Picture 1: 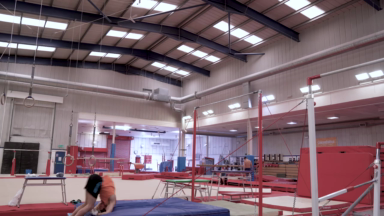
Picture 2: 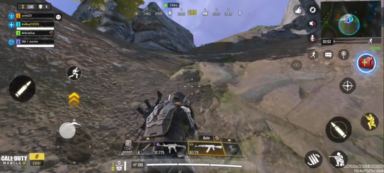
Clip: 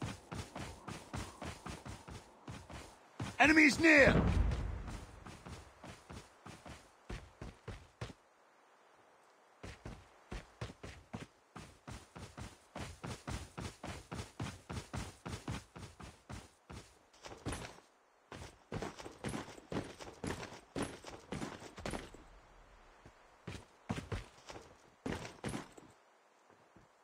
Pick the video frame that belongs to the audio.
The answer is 2